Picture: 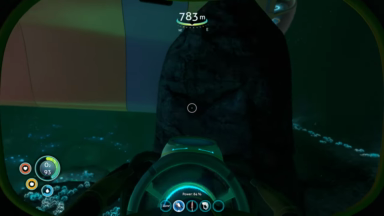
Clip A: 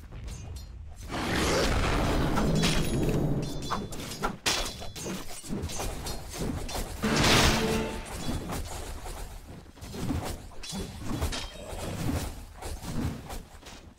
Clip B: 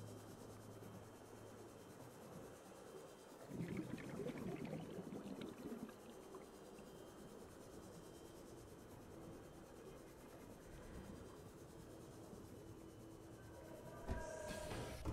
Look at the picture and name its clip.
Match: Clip B